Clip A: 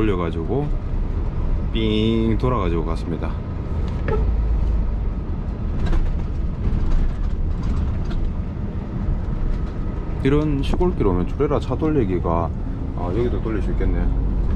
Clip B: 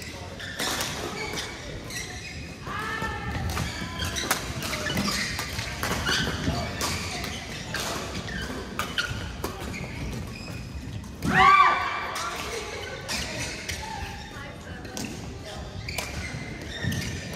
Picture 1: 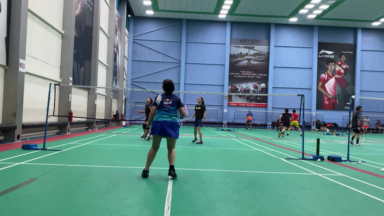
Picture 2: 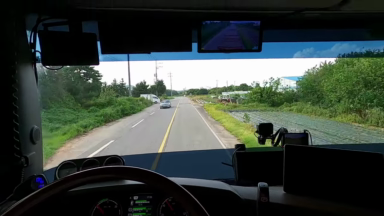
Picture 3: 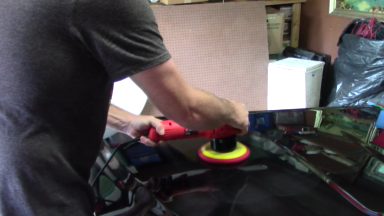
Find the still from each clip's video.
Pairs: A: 2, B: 1